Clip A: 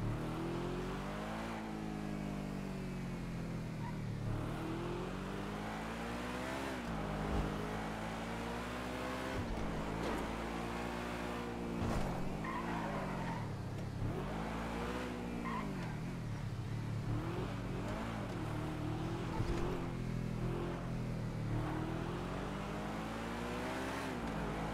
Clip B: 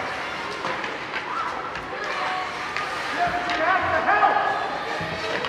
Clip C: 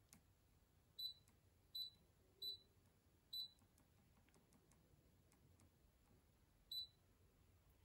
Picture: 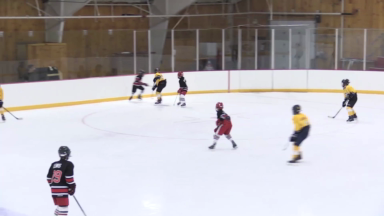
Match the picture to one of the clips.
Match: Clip B